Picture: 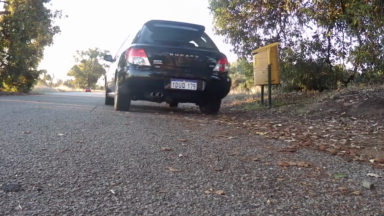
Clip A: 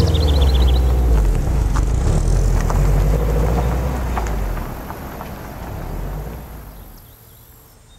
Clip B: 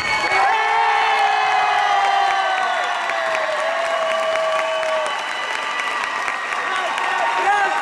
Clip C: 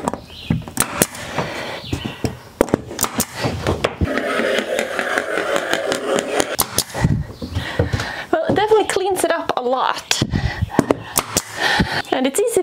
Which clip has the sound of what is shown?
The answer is A